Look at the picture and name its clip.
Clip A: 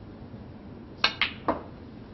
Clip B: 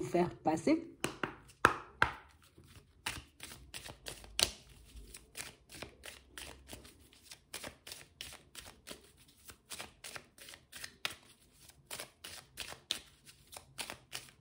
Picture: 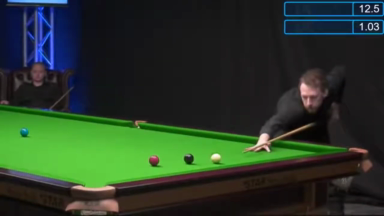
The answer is A